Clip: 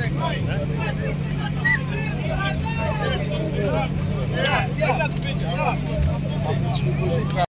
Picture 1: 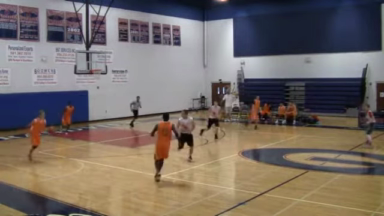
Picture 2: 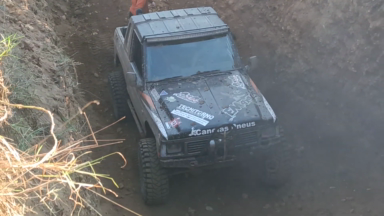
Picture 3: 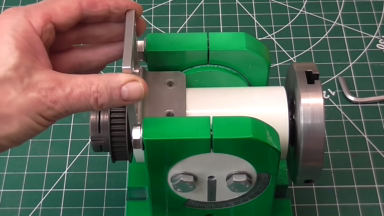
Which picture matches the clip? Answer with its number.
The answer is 2